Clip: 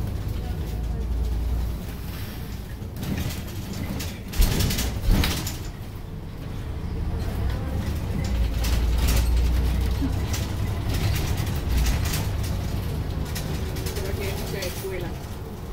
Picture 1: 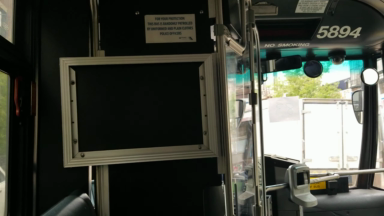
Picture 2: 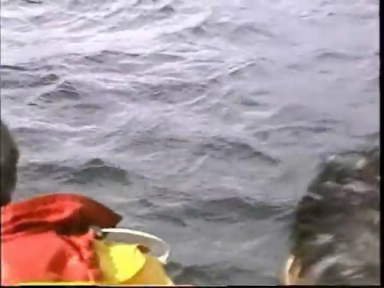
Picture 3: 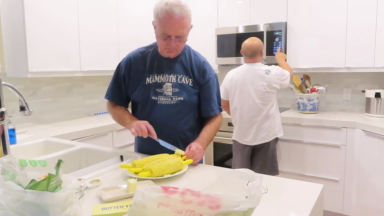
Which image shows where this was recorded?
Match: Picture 1